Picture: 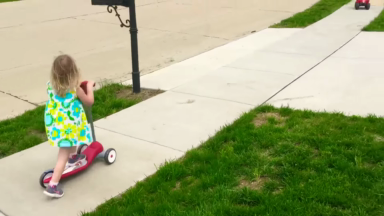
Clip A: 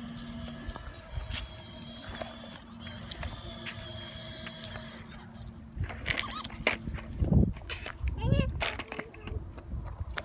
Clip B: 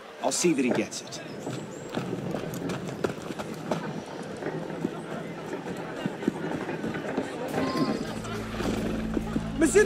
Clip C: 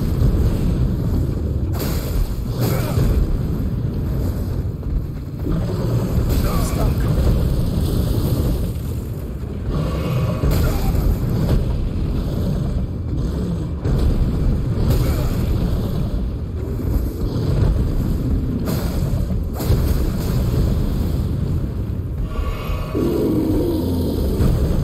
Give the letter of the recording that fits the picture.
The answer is A